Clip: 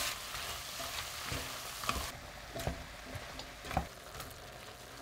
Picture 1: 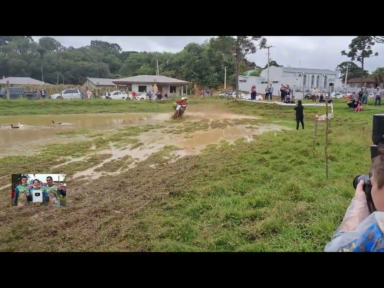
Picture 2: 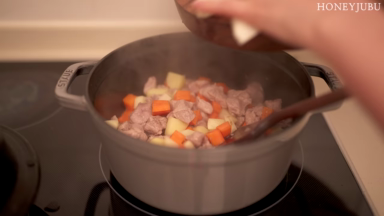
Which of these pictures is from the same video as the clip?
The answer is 2